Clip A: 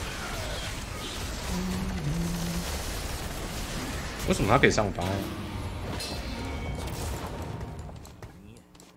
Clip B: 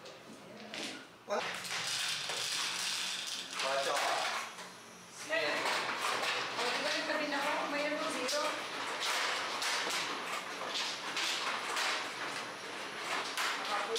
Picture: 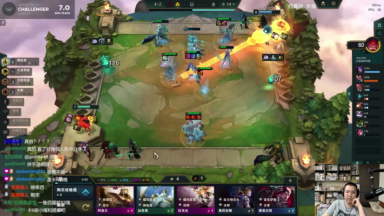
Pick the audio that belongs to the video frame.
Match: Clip A